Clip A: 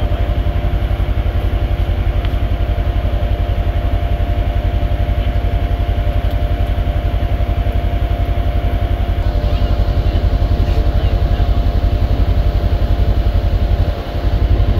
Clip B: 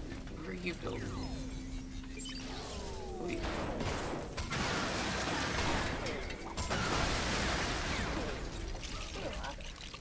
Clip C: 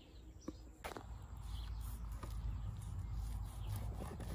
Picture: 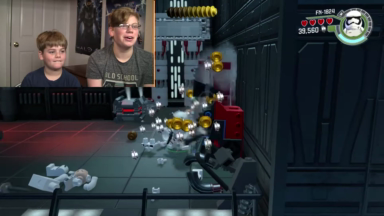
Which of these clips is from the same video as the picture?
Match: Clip B